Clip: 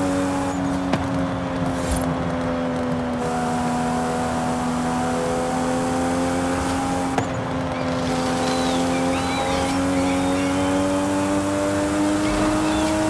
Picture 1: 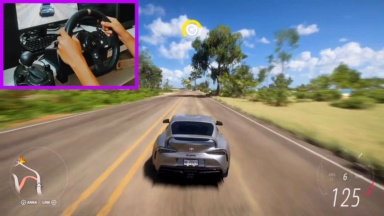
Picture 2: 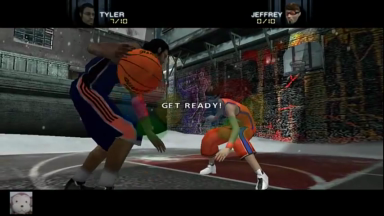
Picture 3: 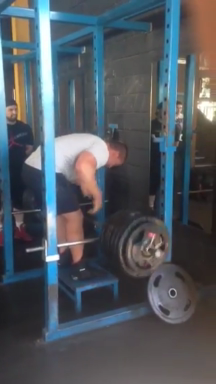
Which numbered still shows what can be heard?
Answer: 1